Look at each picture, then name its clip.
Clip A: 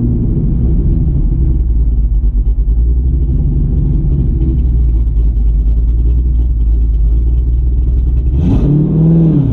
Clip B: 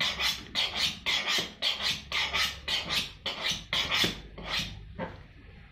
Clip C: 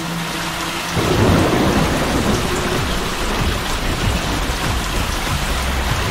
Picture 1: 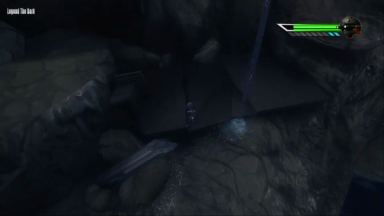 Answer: C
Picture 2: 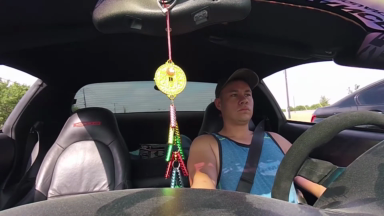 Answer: A